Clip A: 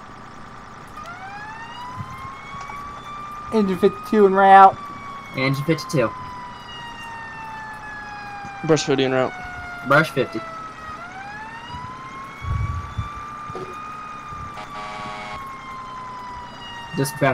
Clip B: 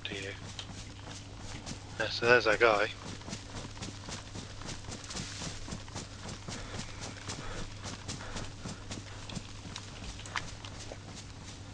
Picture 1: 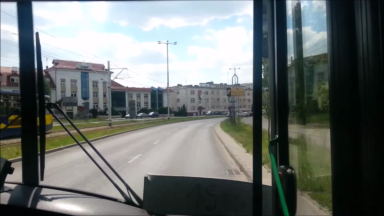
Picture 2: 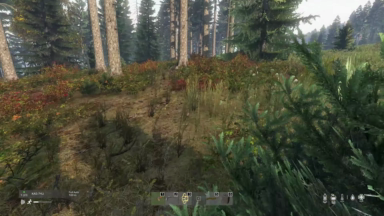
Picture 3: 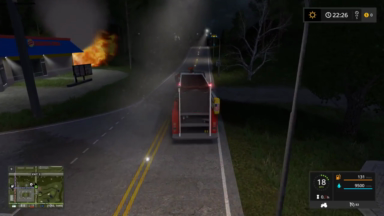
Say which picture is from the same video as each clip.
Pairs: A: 3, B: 2